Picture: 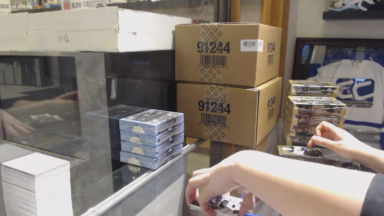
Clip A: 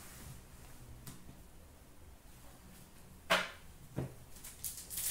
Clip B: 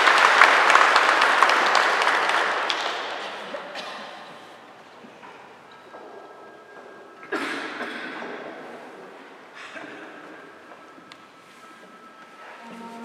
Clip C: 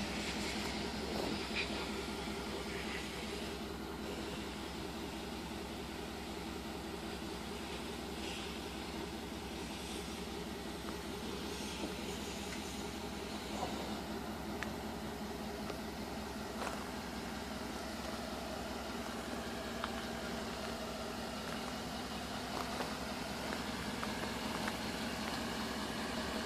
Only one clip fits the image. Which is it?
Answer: A